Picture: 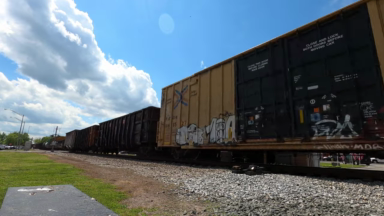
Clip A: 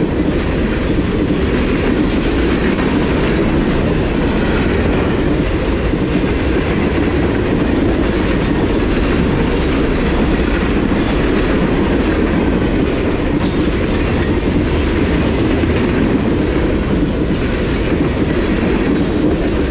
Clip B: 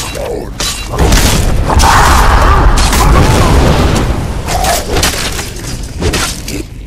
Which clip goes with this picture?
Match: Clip A